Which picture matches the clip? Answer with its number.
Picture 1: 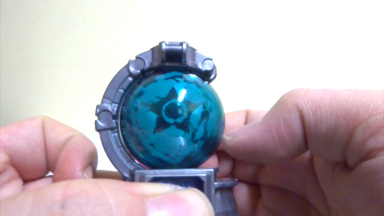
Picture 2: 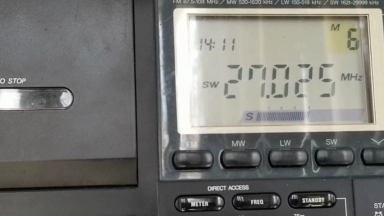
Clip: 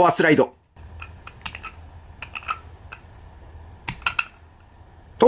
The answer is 1